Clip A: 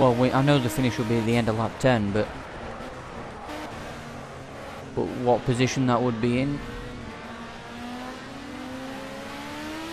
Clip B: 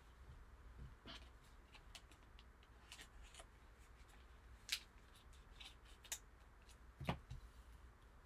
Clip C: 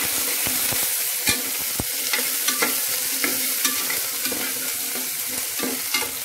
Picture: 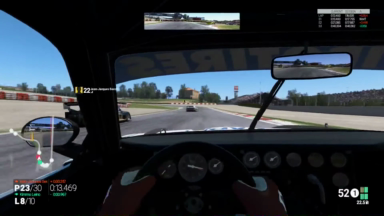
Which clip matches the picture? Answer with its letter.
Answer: A